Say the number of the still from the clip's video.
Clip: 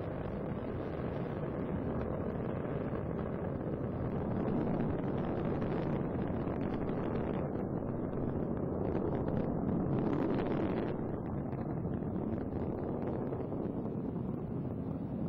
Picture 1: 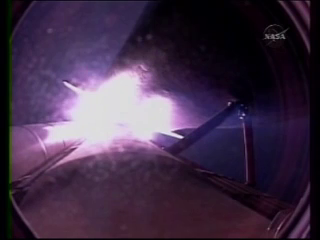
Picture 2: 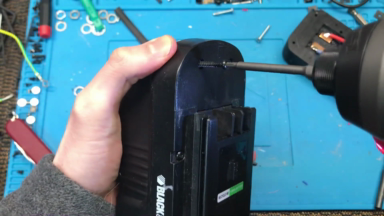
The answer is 1